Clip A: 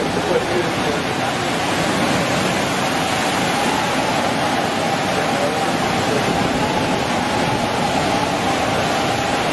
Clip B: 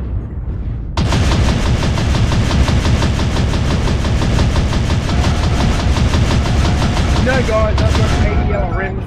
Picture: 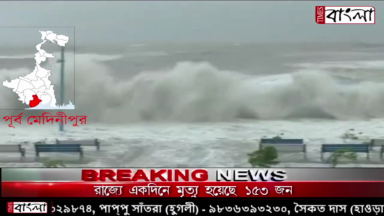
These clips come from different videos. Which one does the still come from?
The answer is A